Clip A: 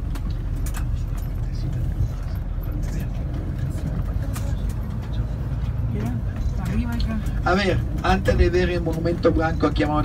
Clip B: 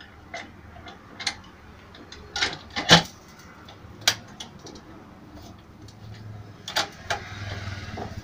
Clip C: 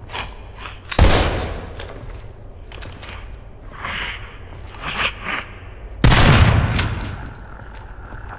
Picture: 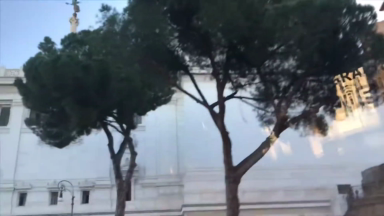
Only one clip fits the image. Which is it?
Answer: A